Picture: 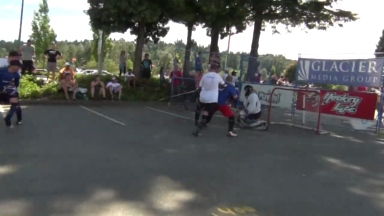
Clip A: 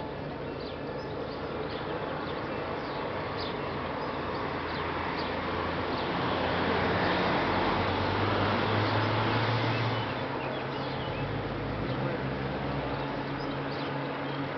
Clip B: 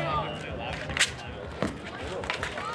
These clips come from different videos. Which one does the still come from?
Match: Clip B